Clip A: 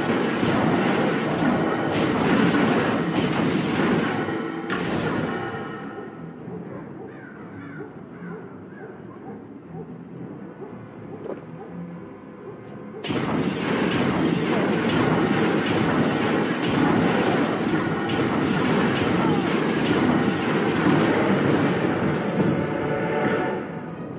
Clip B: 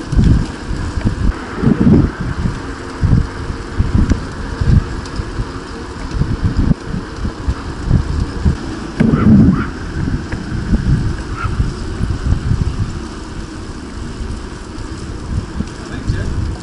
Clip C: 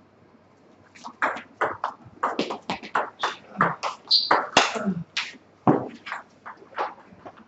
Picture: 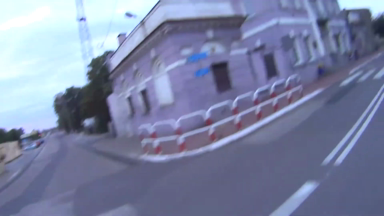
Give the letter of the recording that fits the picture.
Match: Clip B